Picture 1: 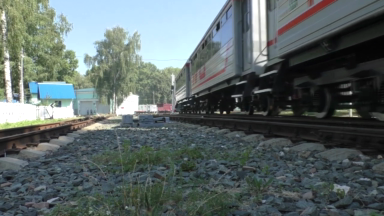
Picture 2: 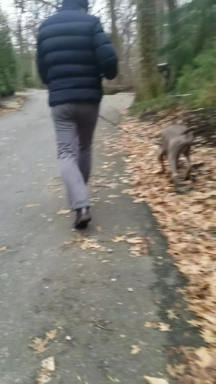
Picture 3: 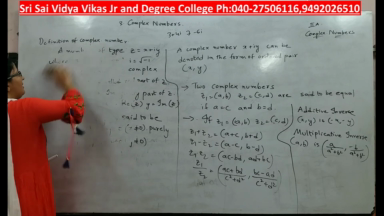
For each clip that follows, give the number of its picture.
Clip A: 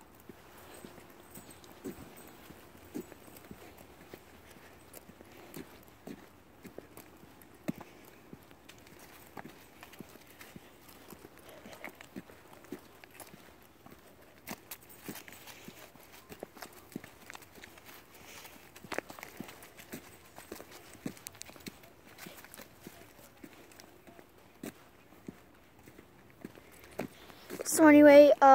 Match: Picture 2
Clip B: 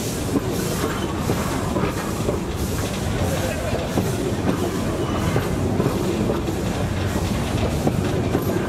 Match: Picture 1